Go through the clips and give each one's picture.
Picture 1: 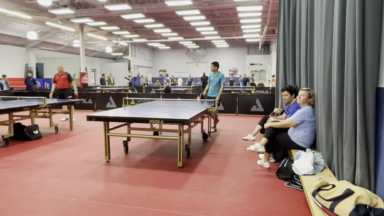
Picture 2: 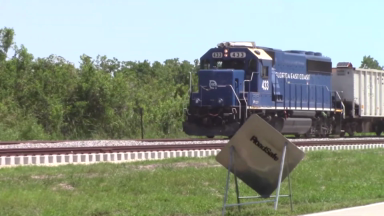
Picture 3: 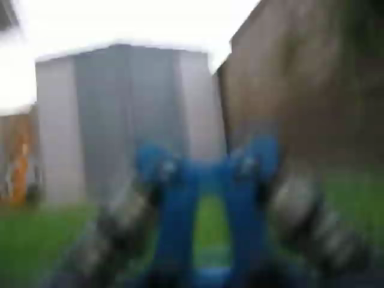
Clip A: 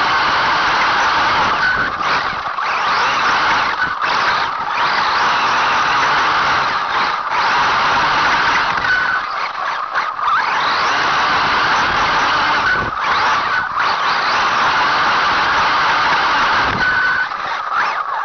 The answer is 3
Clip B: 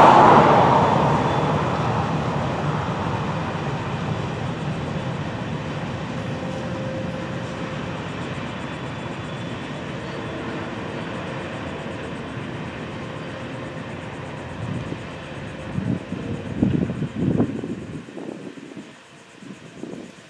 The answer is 2